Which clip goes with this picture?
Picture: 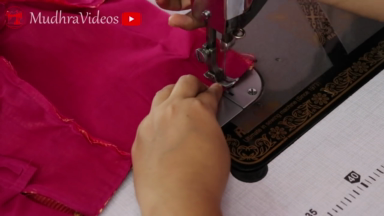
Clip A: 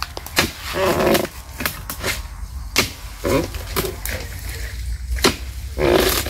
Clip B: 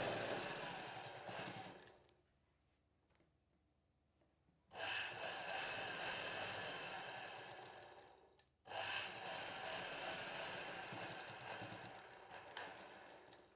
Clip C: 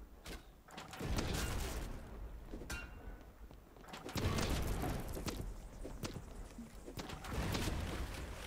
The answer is B